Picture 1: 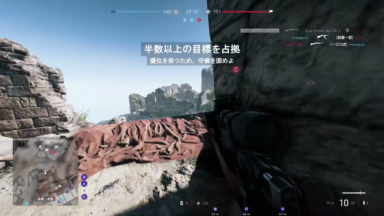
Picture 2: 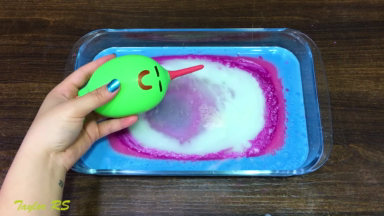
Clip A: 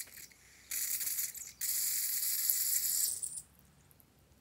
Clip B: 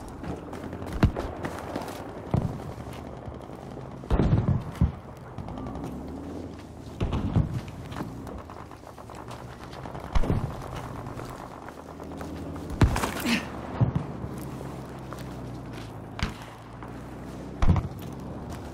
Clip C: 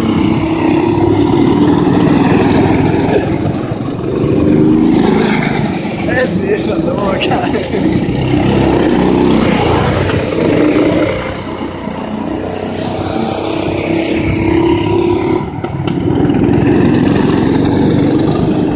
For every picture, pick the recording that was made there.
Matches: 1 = B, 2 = A